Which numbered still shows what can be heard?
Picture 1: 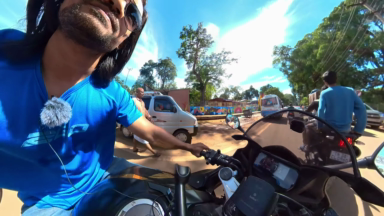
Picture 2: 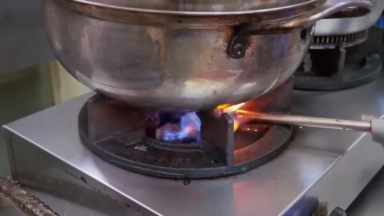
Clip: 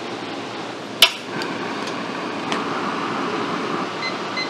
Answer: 2